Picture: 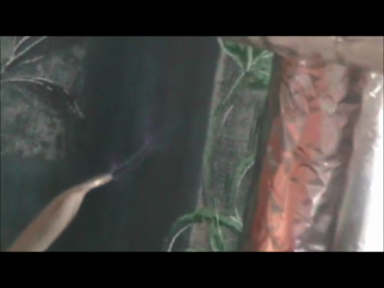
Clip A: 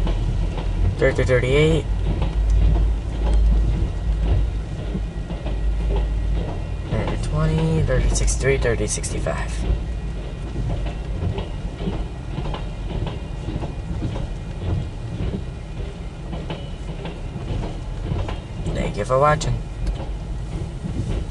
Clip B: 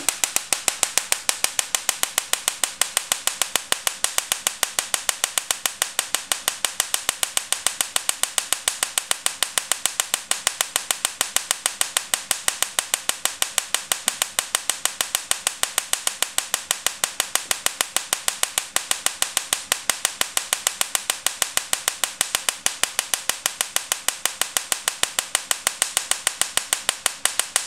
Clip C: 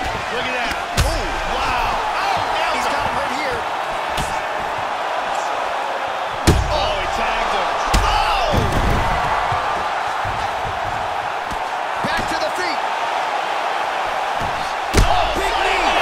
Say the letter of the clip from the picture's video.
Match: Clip B